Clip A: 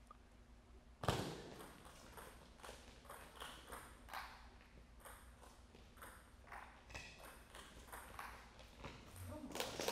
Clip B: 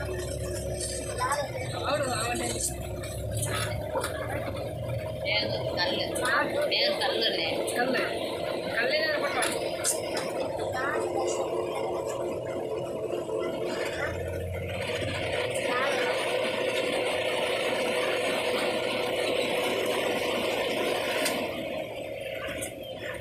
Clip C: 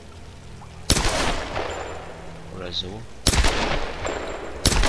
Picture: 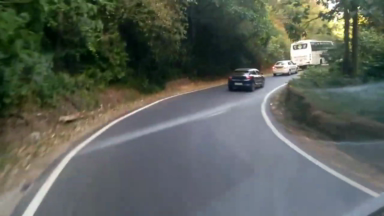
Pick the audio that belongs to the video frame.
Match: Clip B